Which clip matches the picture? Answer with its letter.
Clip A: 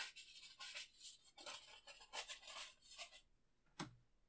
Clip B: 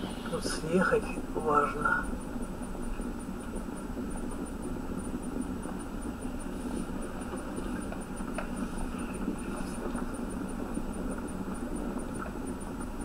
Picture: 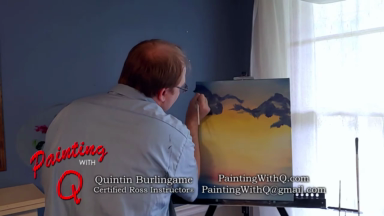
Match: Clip A